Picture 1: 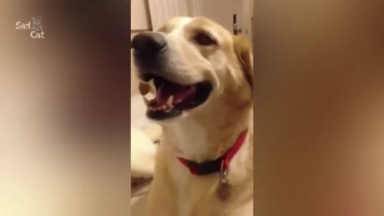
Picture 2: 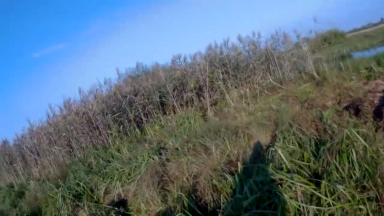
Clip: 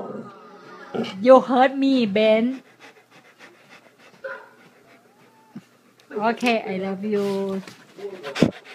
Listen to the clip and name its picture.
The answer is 1